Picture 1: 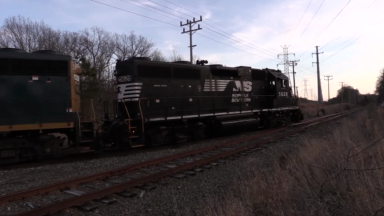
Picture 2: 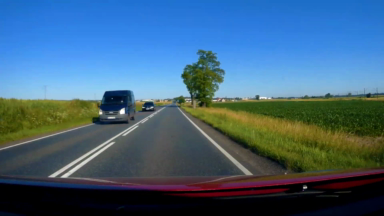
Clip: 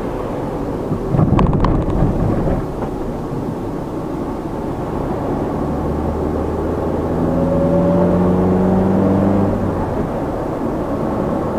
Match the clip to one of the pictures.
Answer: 2